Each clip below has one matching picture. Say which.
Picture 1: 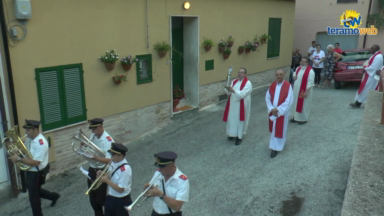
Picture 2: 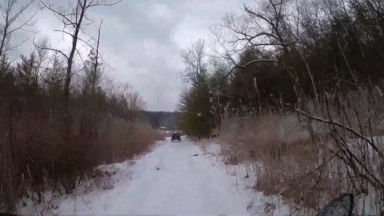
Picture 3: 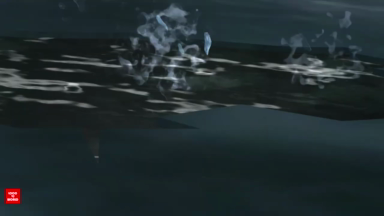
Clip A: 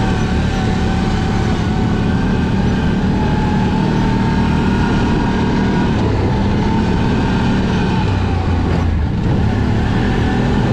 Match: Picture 2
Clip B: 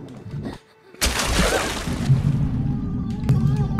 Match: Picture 3